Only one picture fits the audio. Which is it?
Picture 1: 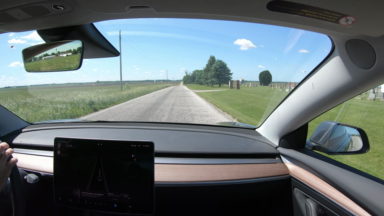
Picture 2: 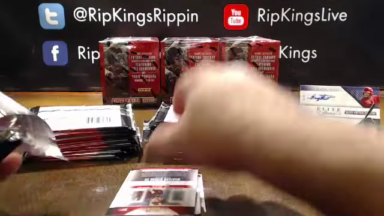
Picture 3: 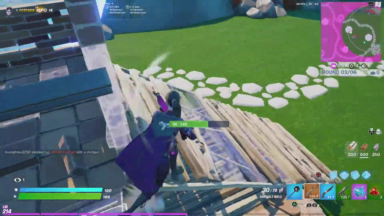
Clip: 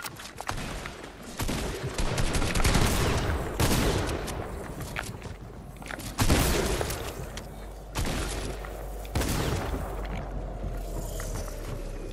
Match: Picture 3